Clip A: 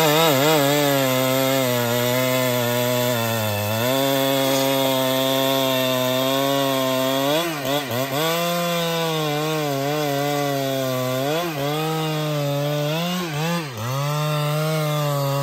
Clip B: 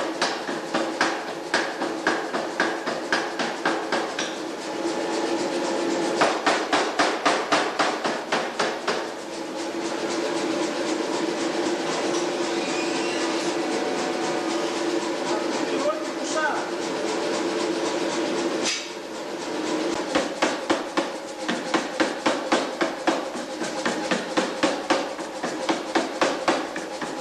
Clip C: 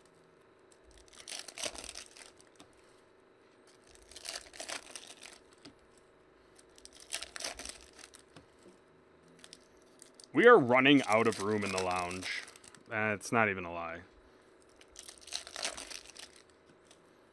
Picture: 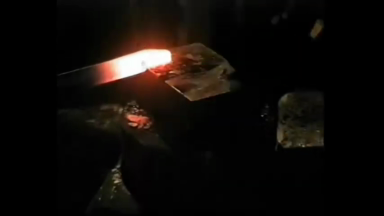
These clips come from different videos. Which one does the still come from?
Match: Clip B